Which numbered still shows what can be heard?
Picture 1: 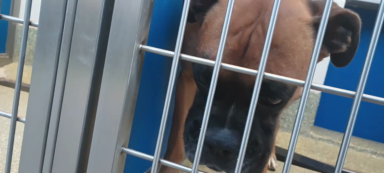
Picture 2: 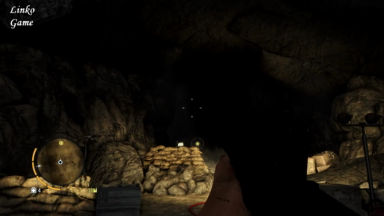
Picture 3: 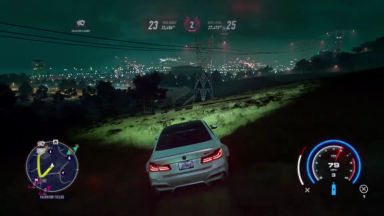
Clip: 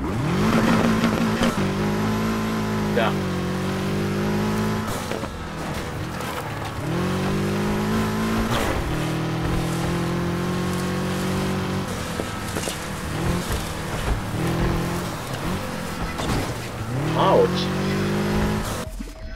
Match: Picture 3